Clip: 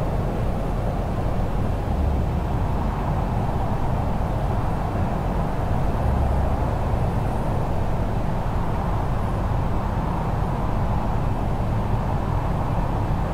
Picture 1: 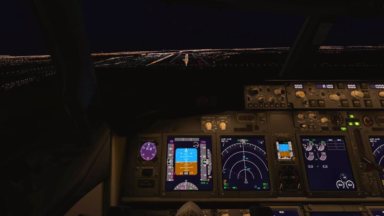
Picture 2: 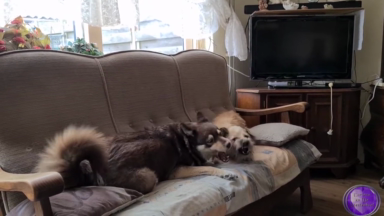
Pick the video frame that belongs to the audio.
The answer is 1